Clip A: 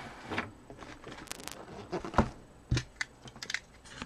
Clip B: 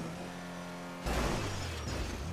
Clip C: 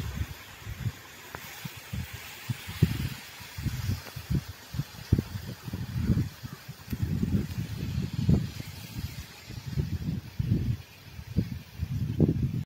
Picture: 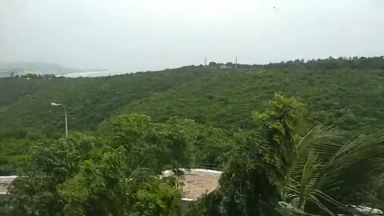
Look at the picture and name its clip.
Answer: C